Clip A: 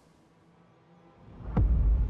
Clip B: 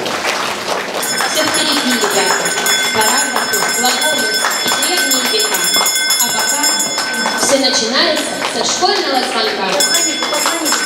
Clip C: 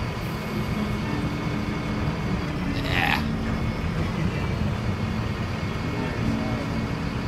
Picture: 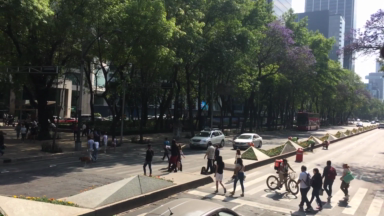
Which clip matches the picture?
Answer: C